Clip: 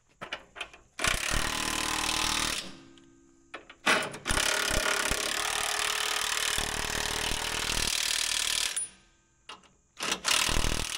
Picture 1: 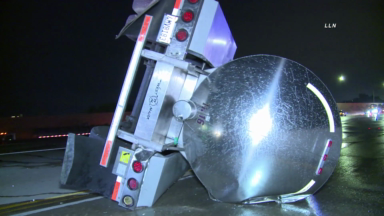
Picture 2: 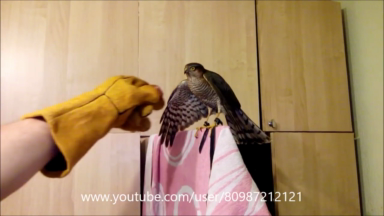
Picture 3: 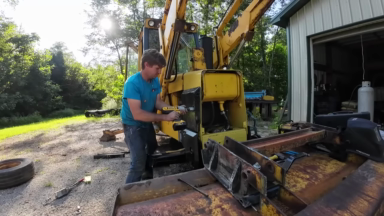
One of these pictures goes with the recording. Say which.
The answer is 3